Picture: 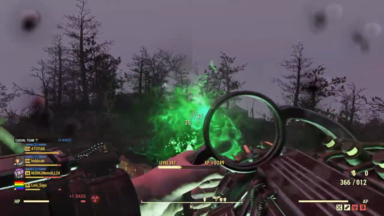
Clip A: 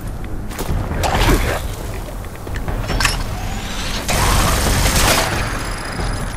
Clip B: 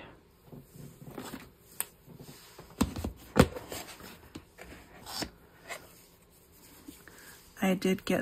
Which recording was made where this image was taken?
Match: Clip A